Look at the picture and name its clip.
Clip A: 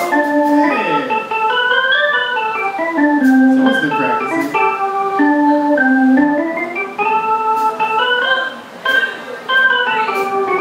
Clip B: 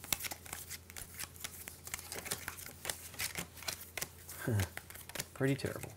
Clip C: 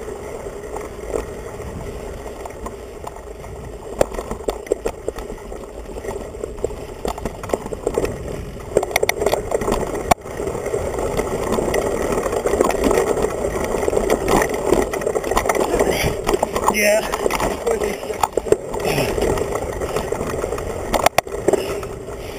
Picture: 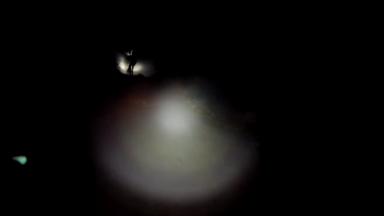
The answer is C